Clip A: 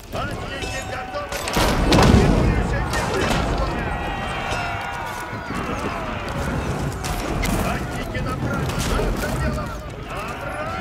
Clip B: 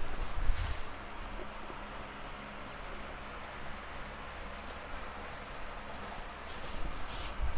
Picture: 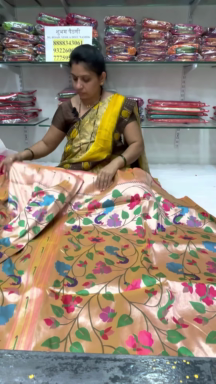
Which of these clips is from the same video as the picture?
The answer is B